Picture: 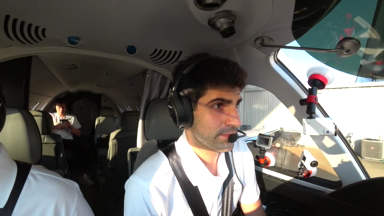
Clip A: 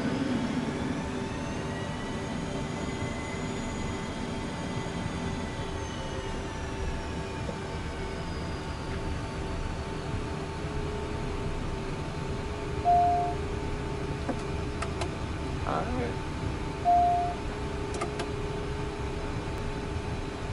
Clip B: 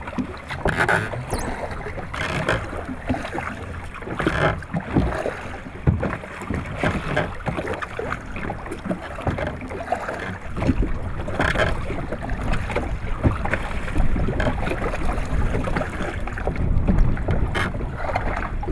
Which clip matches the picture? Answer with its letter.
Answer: A